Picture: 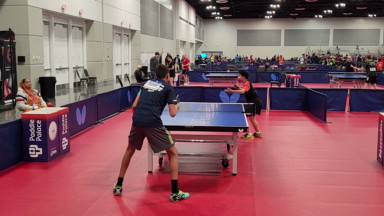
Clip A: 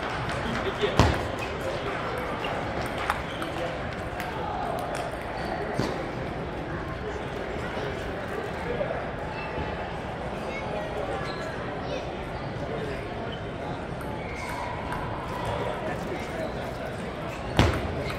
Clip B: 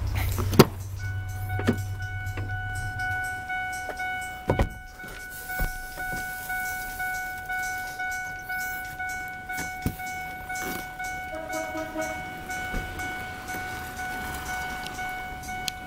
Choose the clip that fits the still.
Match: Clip A